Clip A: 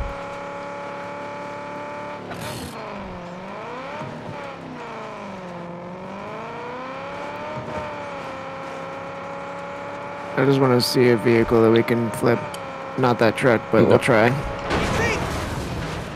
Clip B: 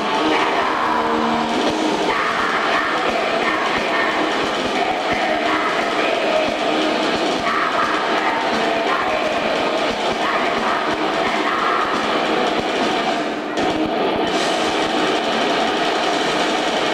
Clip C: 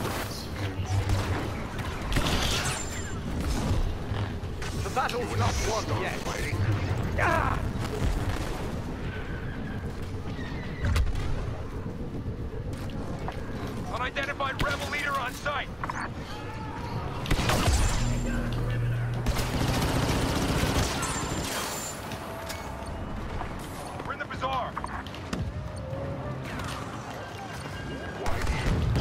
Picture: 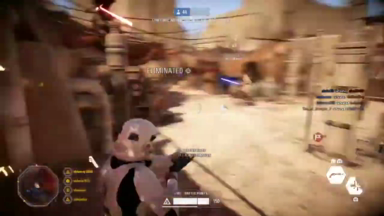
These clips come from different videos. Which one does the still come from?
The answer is C